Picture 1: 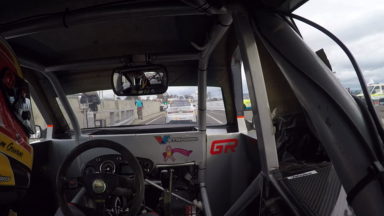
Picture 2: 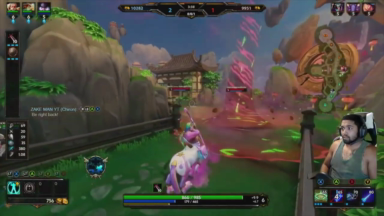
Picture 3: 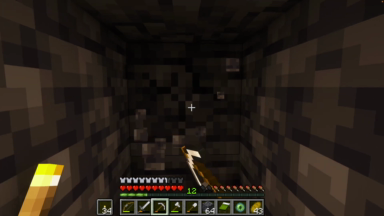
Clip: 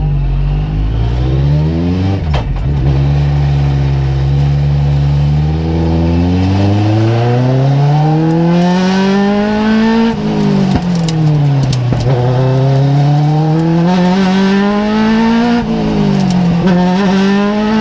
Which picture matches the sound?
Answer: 1